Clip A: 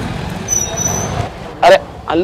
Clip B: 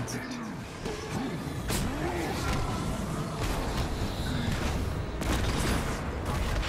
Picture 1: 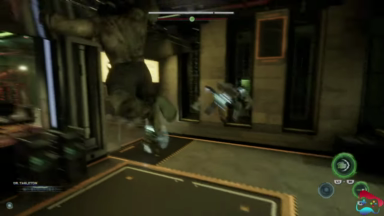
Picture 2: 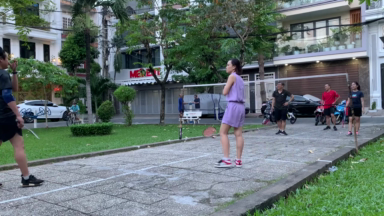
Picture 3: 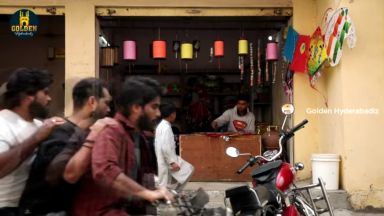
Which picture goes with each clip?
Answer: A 3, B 1